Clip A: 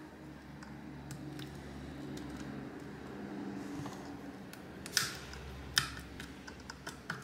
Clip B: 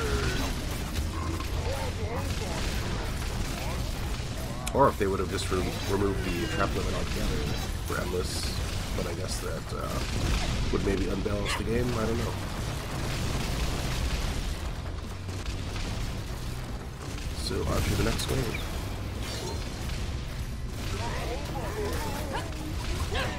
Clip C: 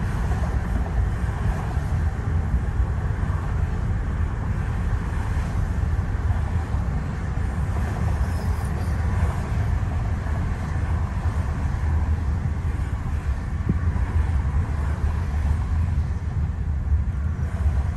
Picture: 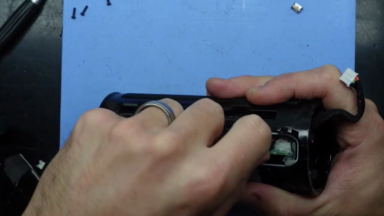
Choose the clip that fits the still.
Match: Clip A